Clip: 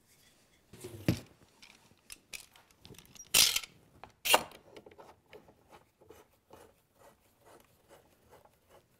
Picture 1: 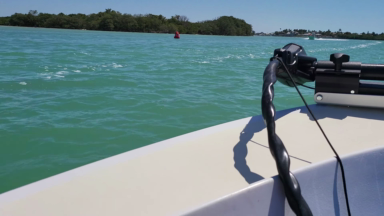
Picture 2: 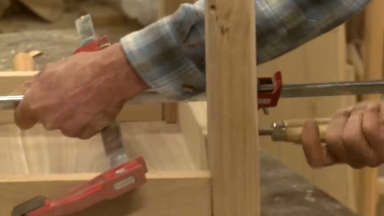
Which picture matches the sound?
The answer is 2